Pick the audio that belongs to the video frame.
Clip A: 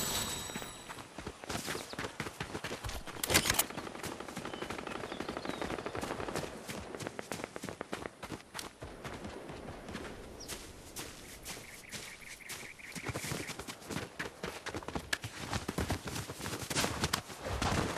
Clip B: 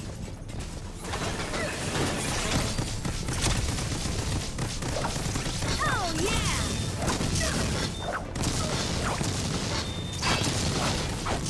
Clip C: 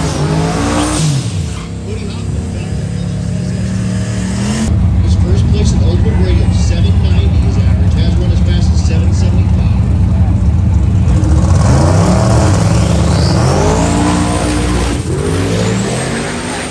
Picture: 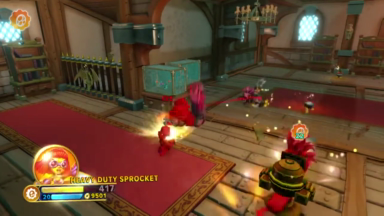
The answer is B